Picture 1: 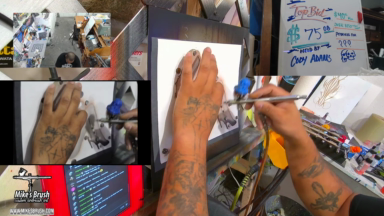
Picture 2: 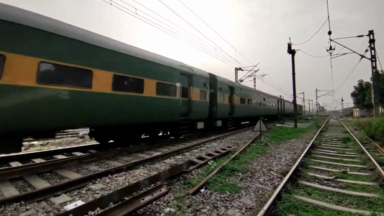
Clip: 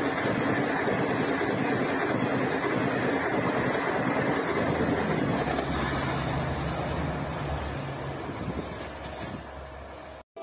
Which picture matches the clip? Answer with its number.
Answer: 2